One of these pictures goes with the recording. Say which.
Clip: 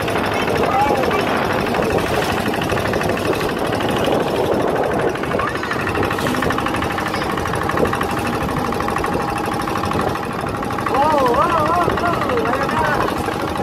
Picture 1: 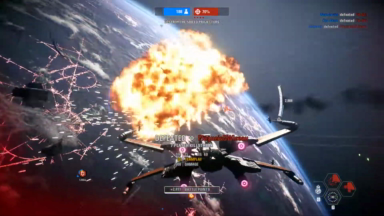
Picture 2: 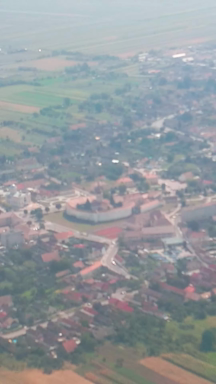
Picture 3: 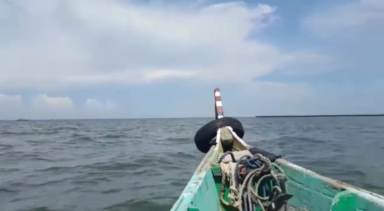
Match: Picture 3